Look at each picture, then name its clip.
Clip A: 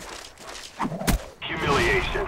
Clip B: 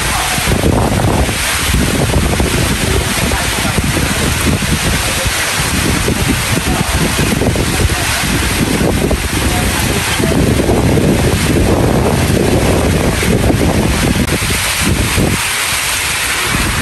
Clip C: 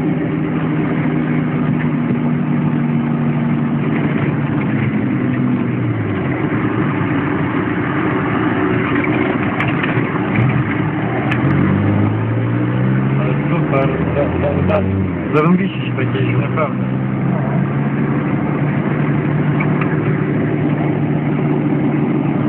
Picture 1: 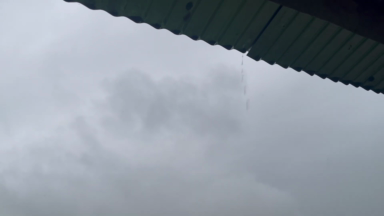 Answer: B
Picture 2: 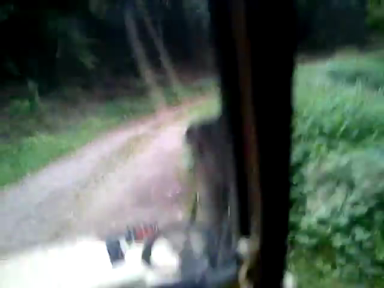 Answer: C